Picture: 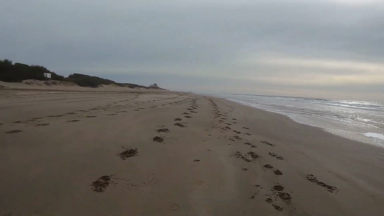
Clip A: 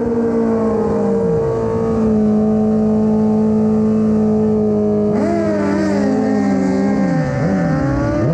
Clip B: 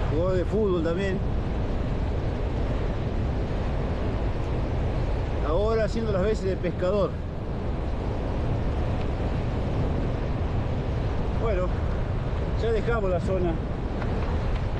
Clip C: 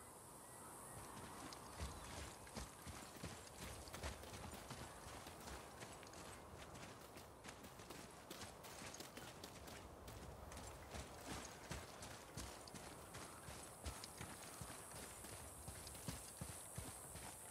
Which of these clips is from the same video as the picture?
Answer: B